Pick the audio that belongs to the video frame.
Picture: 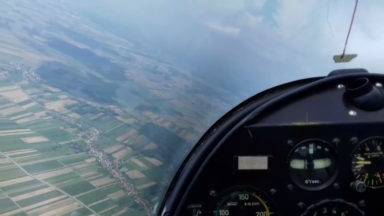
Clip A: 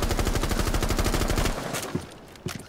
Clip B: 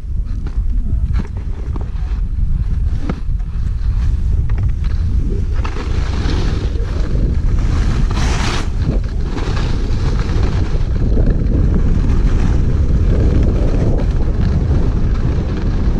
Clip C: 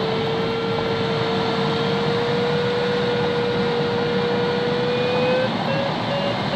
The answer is C